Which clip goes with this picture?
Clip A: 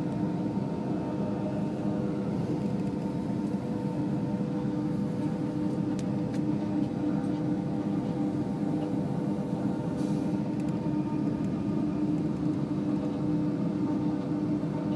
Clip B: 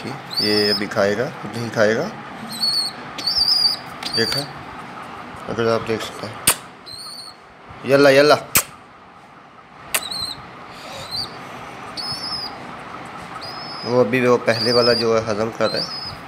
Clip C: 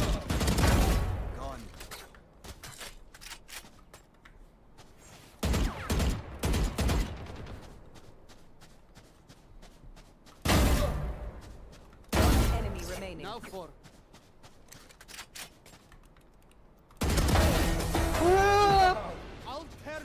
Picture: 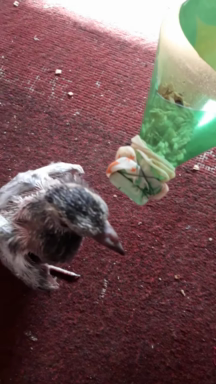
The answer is B